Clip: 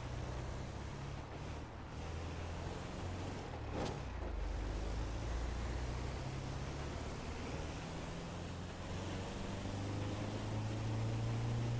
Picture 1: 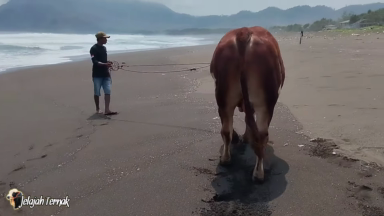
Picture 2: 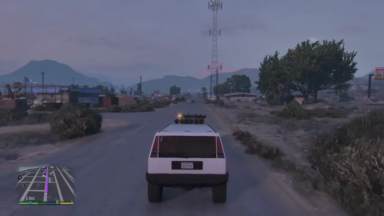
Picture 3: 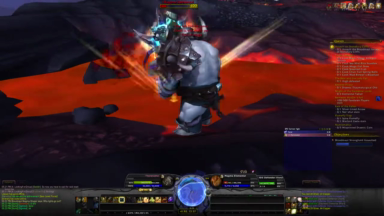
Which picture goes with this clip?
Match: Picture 2